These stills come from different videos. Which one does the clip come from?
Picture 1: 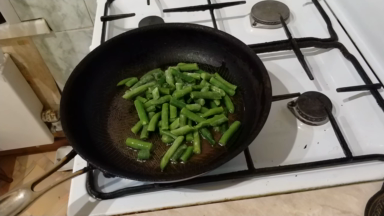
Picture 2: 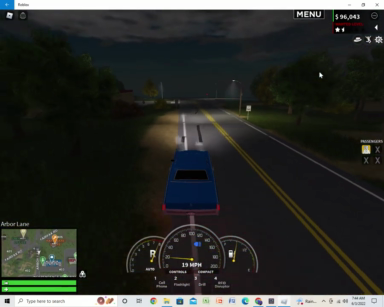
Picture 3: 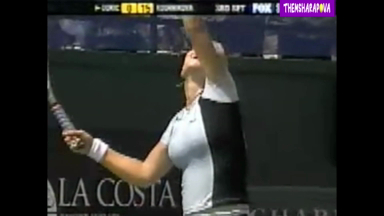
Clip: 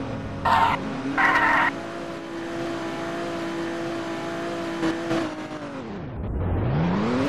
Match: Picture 2